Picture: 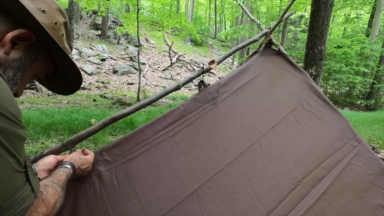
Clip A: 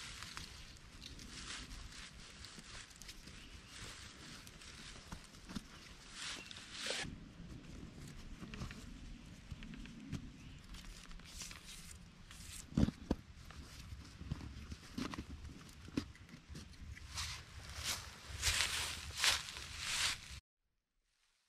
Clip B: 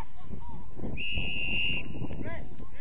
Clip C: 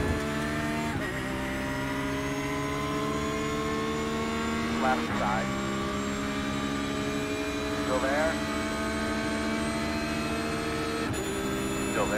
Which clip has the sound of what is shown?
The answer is A